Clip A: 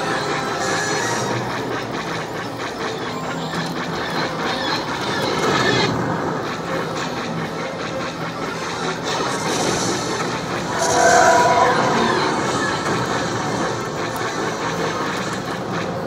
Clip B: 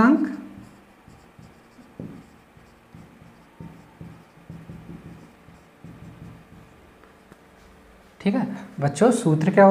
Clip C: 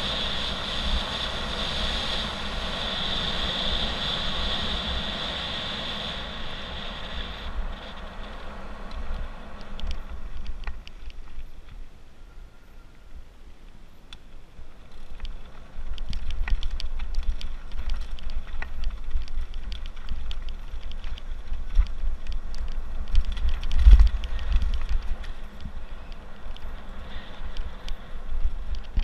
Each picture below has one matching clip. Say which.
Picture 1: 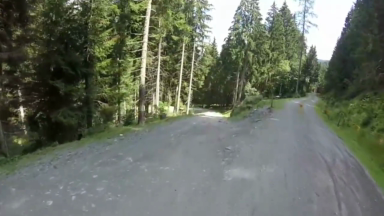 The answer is C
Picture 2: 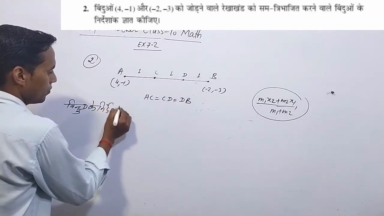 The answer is B